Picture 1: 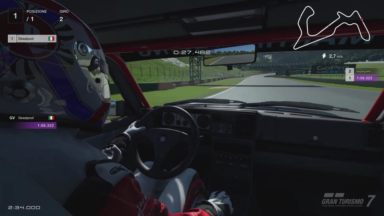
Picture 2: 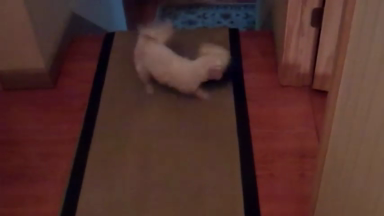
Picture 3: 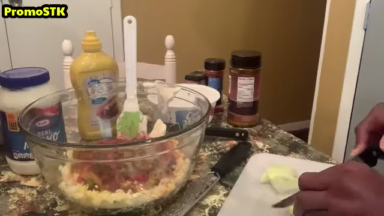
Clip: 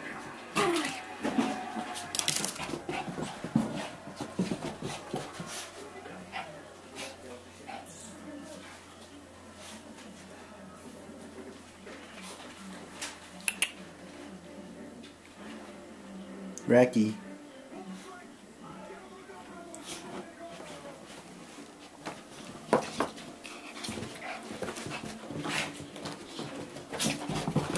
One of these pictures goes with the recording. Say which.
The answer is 2